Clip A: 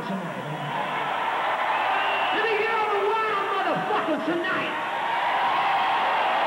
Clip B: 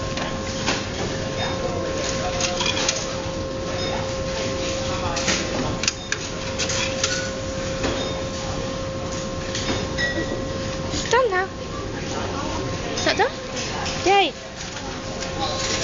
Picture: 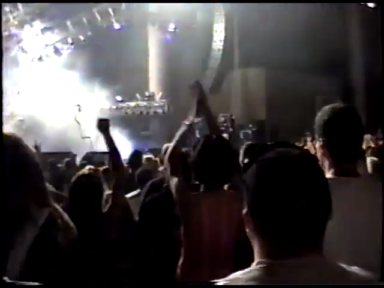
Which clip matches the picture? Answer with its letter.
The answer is A